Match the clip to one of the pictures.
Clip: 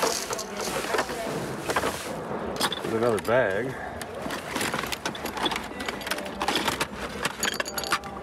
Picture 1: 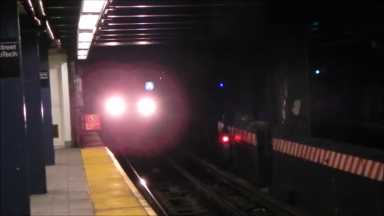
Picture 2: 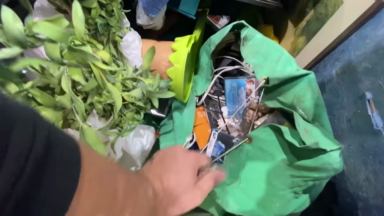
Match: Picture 2